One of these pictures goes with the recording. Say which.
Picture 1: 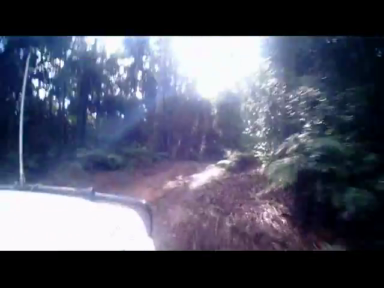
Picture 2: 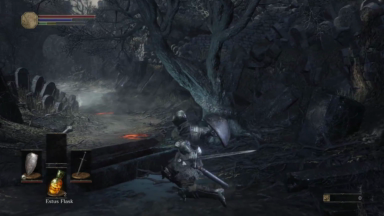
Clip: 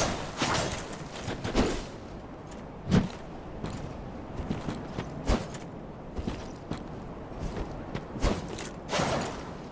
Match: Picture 2